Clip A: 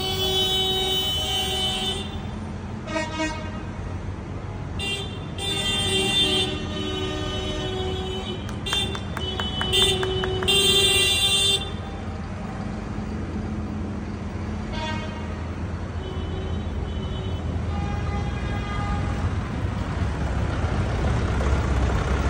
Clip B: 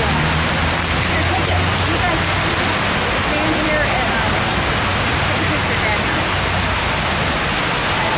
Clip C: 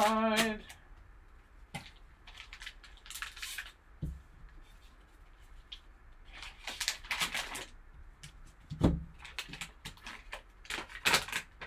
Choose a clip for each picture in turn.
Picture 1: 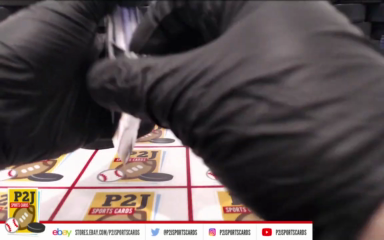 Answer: C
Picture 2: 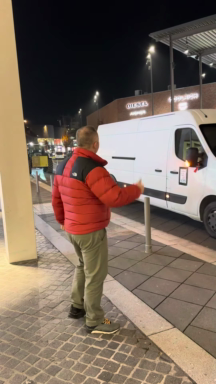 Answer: A